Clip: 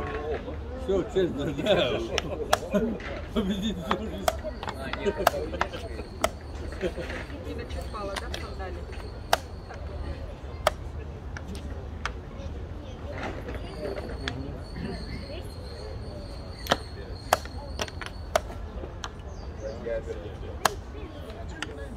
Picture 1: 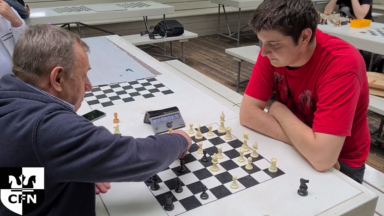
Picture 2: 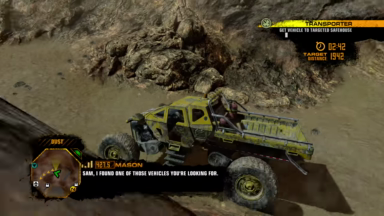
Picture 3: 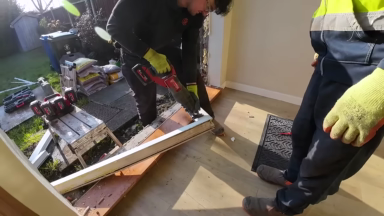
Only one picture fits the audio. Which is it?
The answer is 1